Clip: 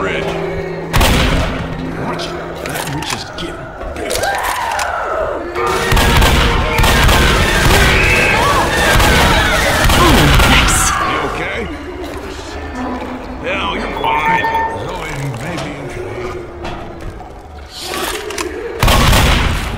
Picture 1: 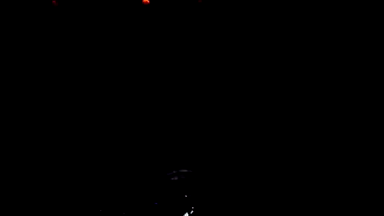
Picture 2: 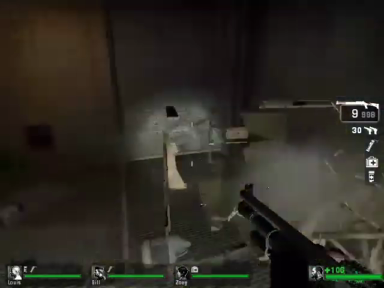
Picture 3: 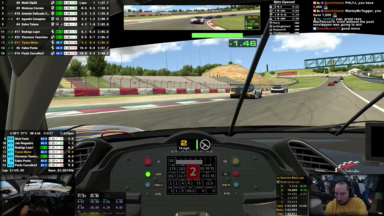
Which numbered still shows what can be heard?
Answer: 2